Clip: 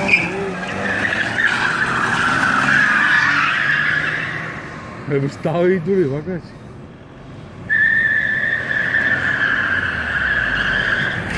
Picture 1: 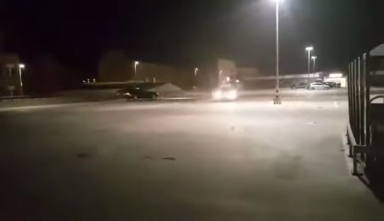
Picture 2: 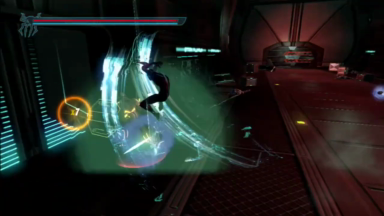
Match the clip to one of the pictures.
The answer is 1